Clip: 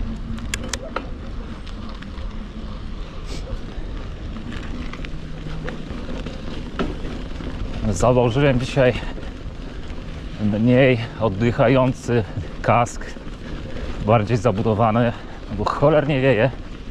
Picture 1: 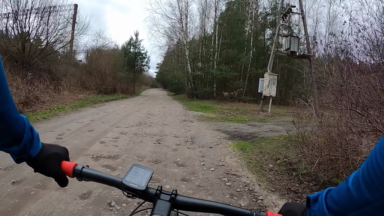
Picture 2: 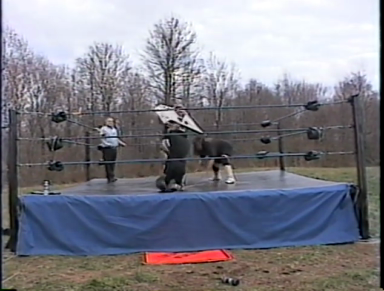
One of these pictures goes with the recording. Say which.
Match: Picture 1